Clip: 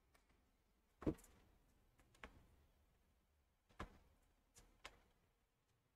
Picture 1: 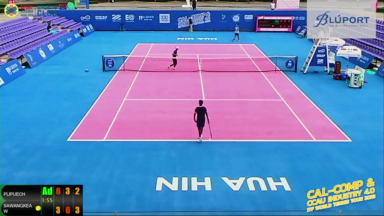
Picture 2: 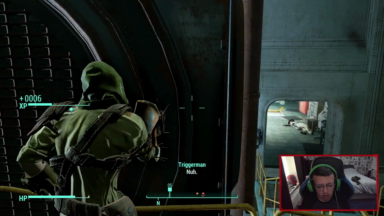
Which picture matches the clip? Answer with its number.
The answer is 1